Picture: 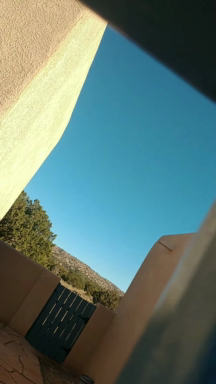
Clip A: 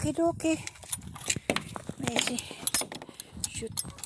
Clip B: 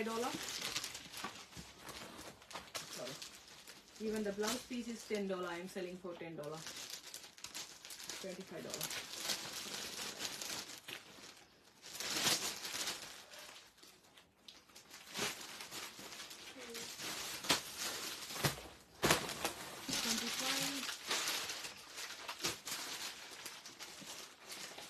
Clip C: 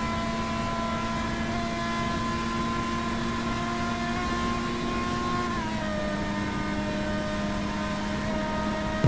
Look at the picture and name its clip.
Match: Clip A